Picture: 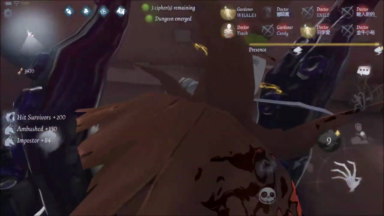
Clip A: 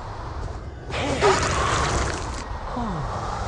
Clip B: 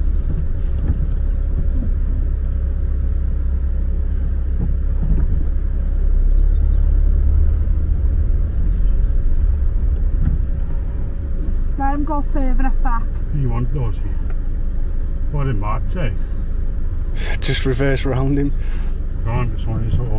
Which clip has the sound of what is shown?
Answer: A